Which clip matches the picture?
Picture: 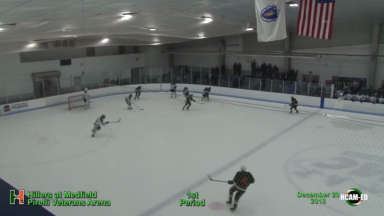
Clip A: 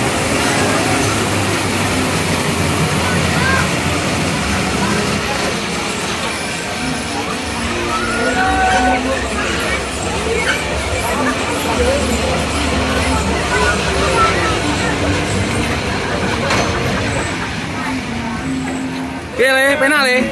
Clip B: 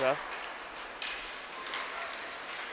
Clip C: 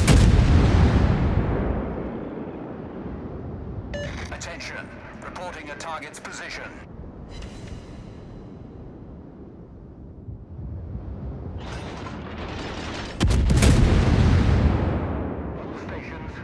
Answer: B